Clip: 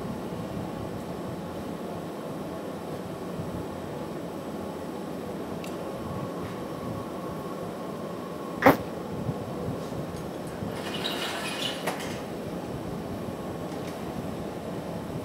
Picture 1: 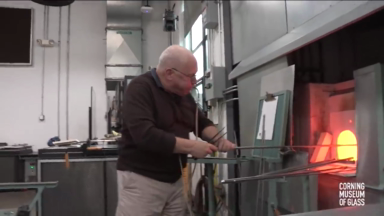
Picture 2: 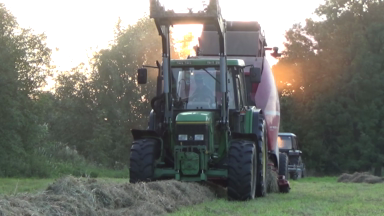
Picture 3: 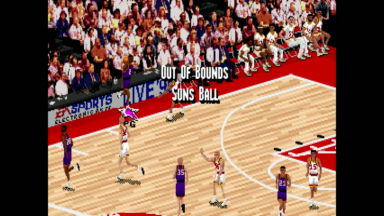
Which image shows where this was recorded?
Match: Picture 1